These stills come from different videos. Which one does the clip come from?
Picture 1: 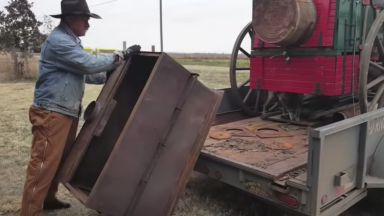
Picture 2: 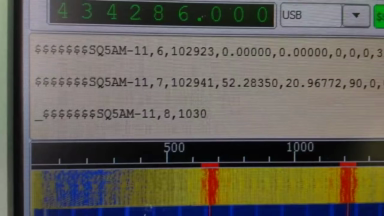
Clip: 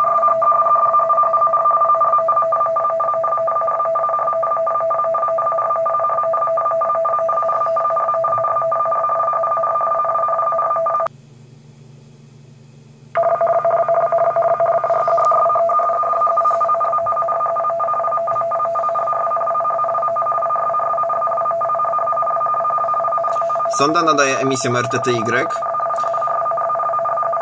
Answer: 2